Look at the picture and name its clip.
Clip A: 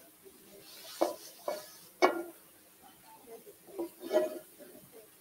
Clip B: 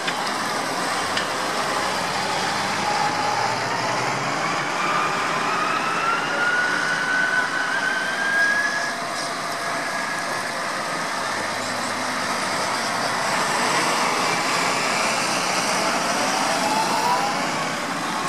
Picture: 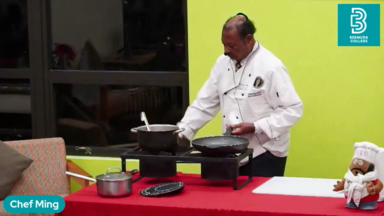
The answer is A